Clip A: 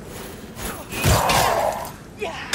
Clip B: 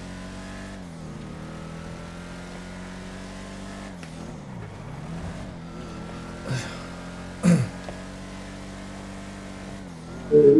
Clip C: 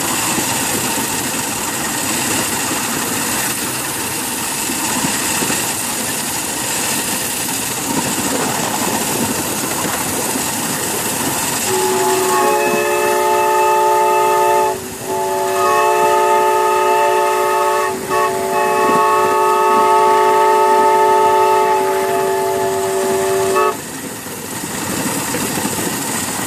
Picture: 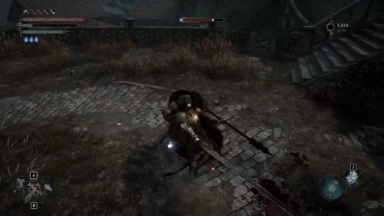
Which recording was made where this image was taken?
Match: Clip A